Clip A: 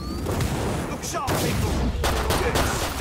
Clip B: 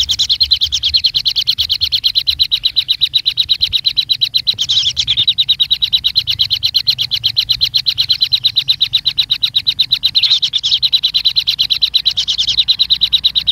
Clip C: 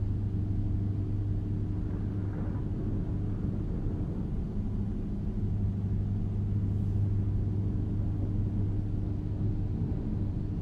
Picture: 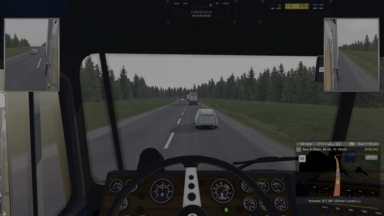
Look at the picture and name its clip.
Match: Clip C